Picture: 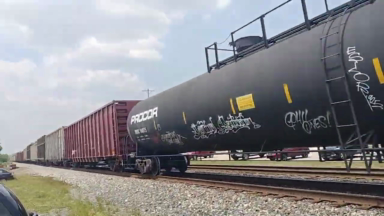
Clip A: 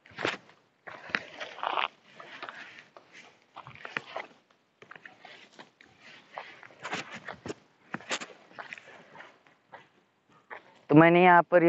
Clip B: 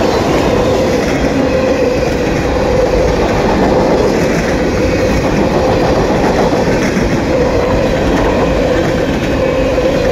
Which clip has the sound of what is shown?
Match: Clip B